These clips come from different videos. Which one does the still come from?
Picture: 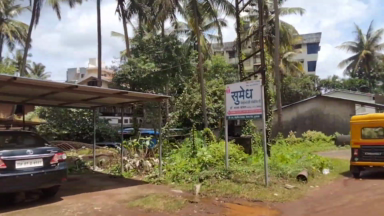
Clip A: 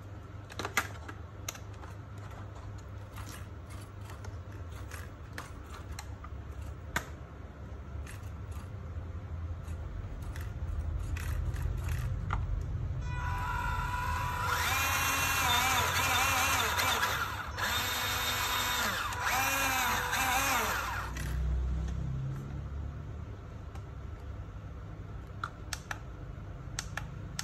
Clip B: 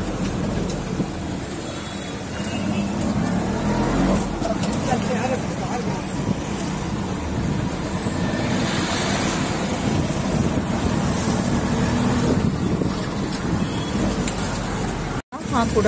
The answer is B